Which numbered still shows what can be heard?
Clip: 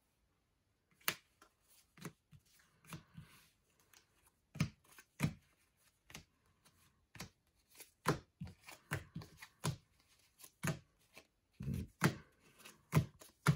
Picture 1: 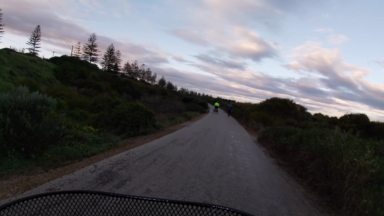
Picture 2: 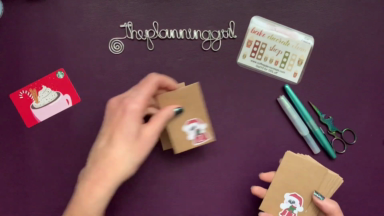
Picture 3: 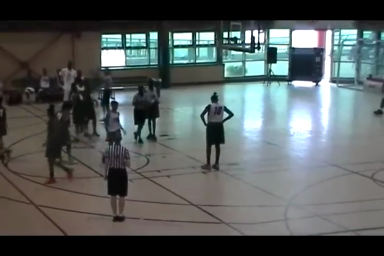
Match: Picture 2